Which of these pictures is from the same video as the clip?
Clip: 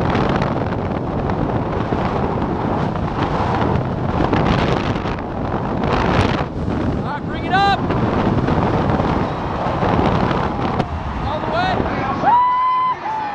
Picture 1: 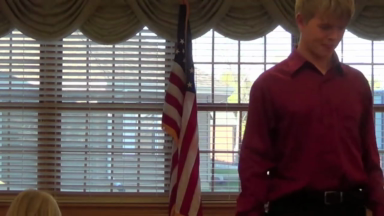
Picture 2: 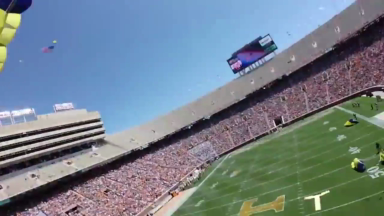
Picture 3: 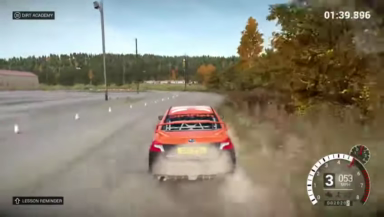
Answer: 2